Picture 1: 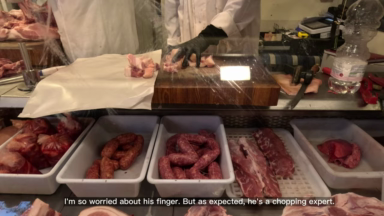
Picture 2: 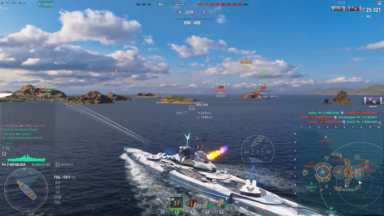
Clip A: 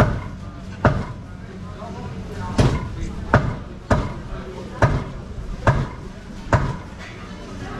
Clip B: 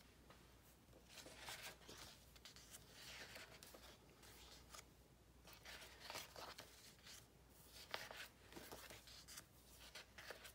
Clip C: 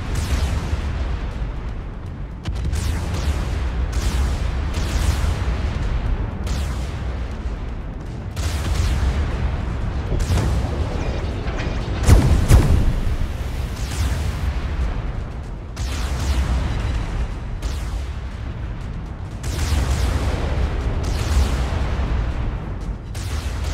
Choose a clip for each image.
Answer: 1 A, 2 C